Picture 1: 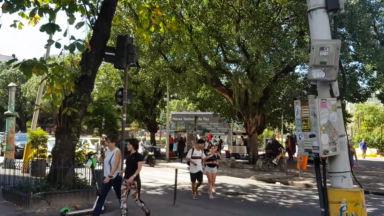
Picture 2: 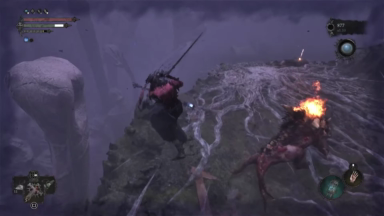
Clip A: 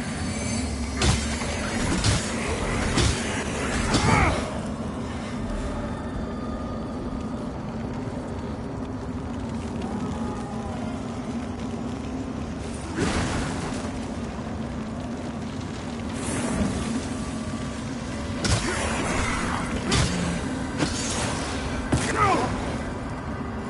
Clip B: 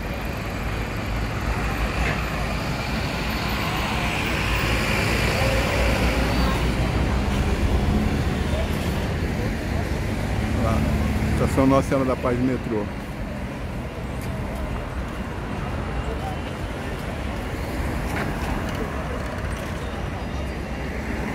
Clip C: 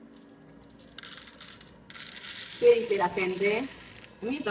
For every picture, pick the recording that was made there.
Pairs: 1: B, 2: A